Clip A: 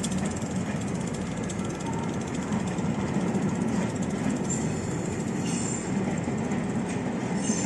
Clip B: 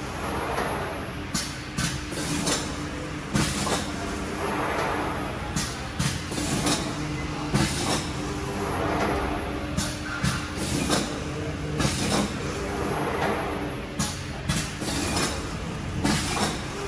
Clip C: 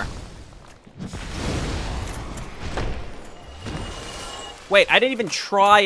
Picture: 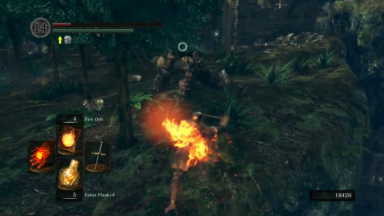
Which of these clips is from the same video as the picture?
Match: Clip C